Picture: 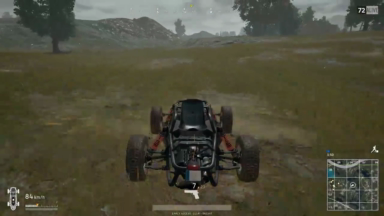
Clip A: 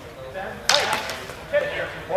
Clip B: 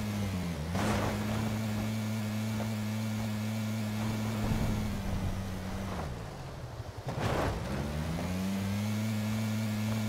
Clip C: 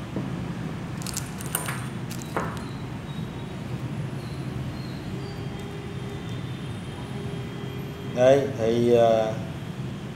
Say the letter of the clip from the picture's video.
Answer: B